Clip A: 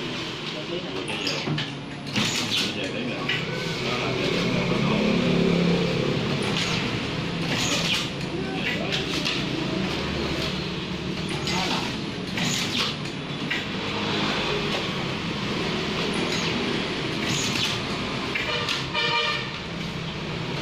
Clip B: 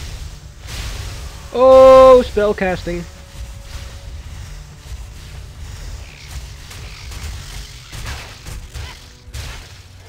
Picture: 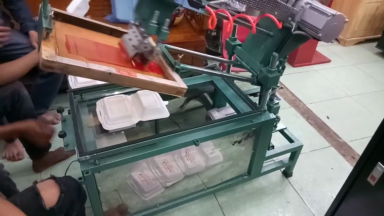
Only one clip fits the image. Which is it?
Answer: A